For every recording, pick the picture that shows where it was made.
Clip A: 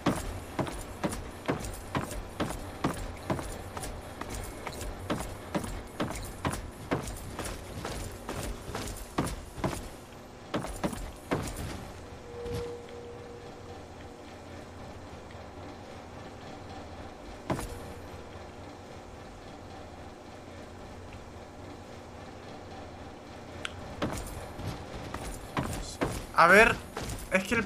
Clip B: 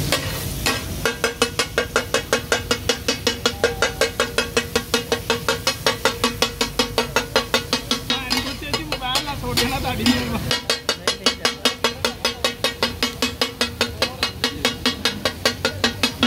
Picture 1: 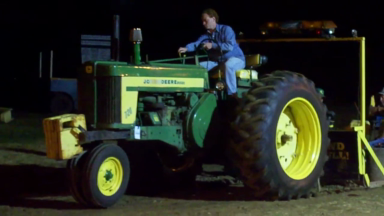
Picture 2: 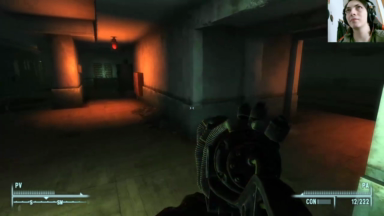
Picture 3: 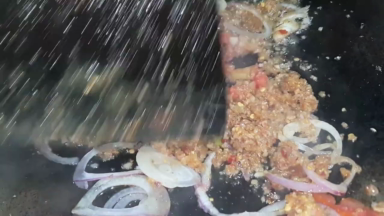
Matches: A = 2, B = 3